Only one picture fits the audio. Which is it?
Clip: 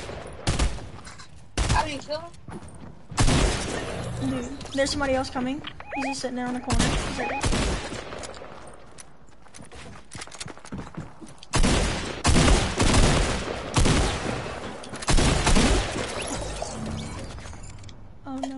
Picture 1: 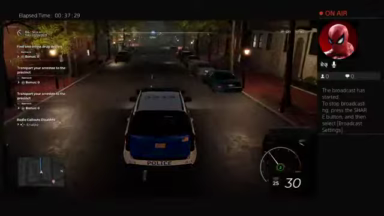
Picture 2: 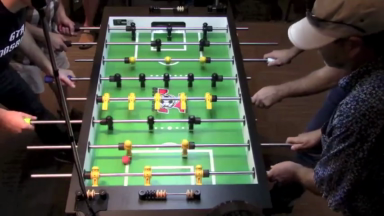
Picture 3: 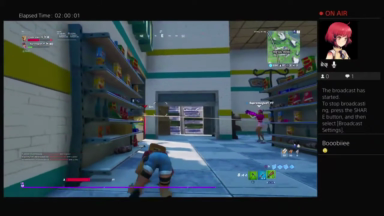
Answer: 3